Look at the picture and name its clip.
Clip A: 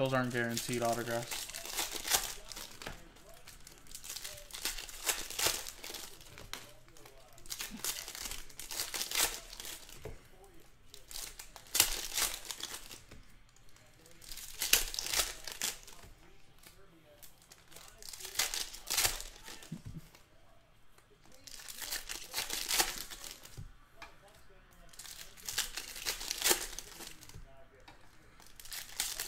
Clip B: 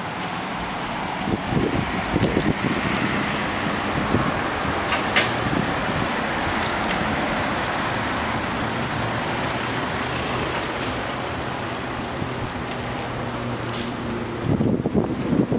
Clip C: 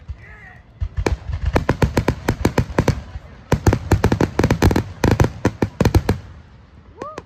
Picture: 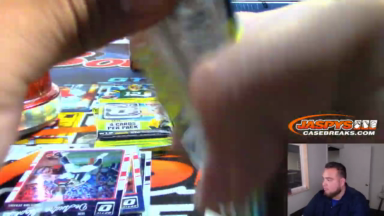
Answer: A